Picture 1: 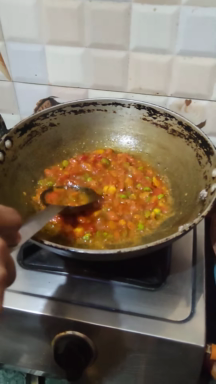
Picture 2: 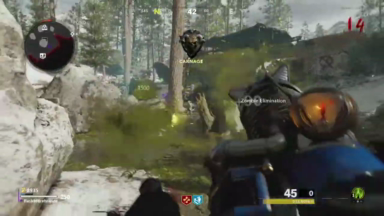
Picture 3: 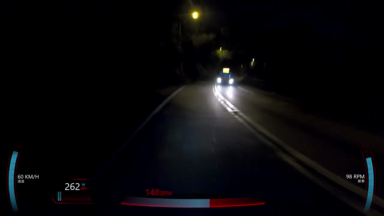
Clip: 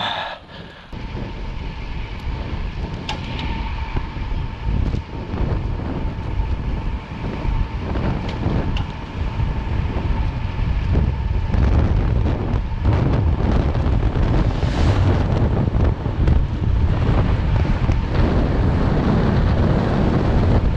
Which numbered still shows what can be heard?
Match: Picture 3